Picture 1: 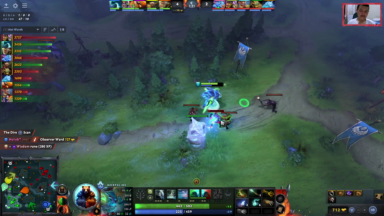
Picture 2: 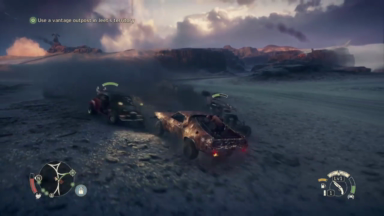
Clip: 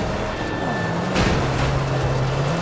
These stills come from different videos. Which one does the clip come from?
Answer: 2